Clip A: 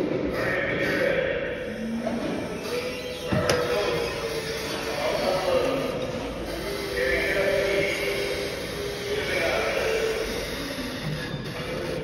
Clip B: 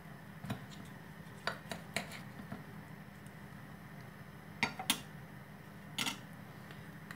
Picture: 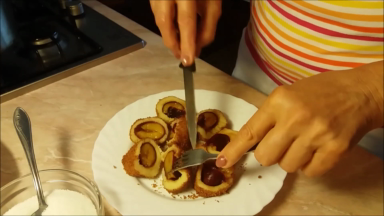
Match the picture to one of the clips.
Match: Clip B